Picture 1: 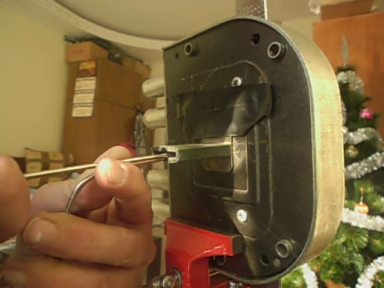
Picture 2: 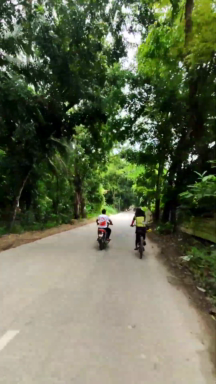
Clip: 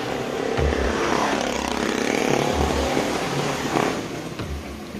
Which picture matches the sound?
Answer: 2